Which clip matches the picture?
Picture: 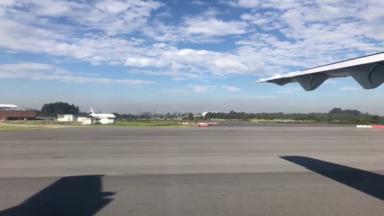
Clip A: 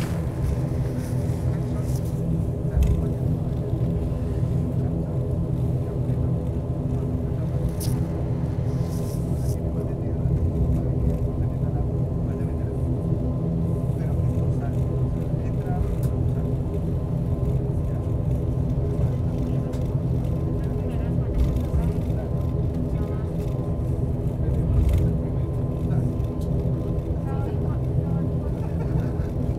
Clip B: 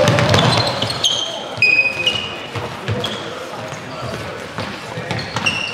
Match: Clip A